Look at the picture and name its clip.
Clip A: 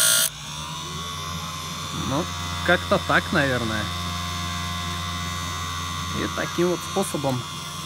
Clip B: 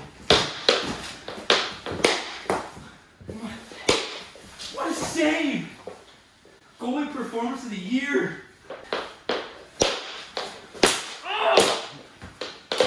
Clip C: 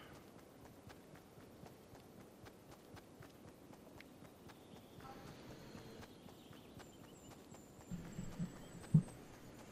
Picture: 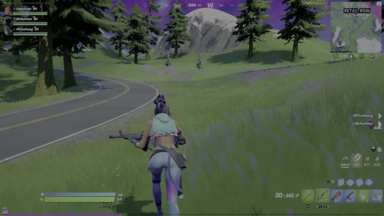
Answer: C